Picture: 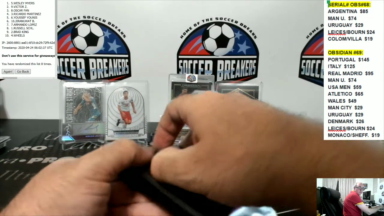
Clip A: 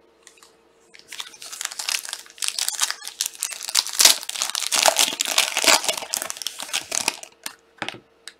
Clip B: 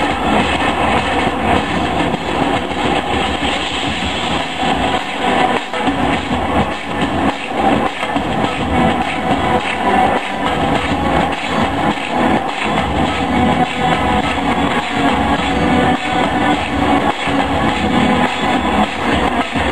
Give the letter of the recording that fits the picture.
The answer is A